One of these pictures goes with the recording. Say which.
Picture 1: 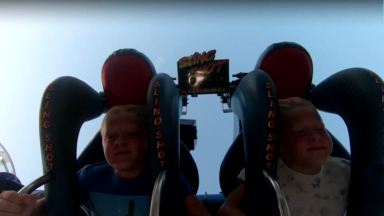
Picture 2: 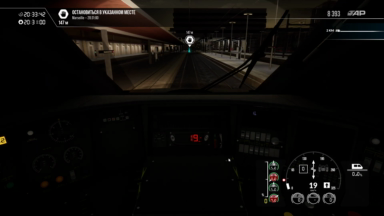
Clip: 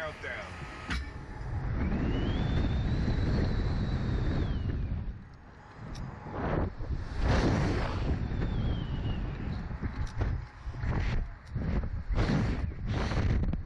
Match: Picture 1